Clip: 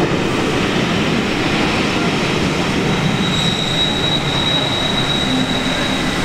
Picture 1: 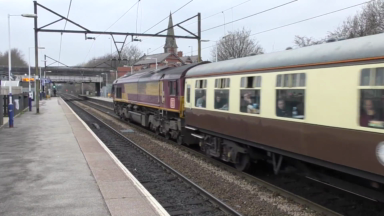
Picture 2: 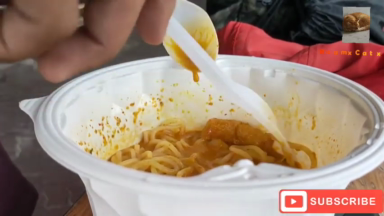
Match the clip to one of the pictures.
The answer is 1